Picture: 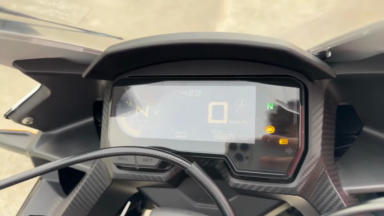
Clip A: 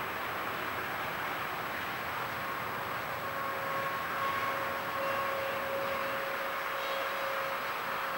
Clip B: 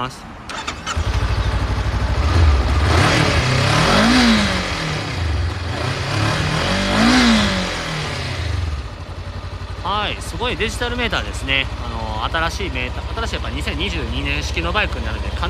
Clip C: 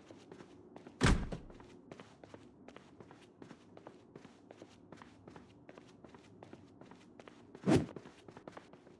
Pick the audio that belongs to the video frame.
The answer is B